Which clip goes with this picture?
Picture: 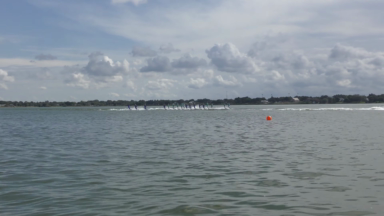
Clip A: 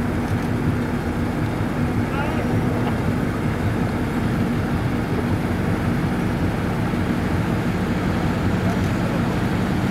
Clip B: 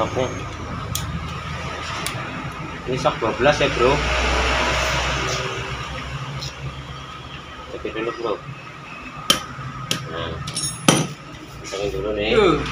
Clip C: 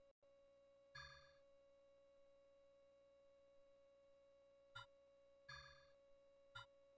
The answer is A